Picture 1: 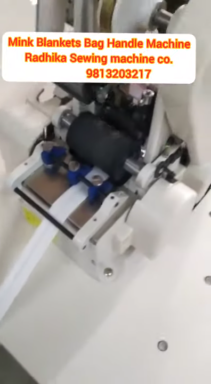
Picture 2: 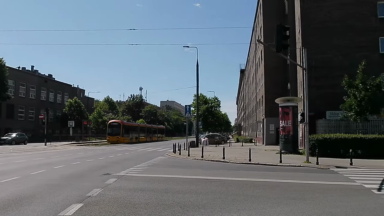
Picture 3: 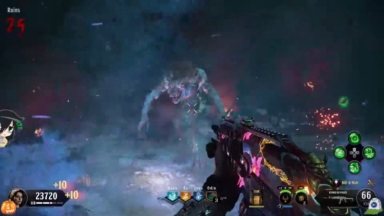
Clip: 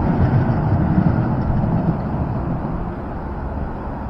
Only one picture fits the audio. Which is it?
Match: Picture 2